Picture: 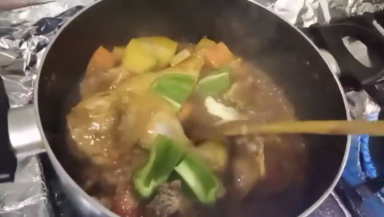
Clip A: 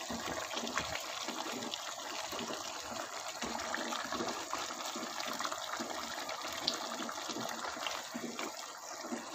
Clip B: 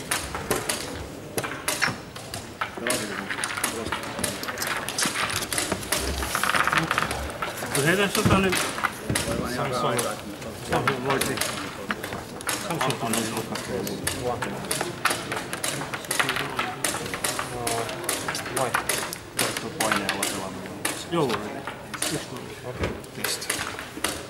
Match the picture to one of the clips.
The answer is A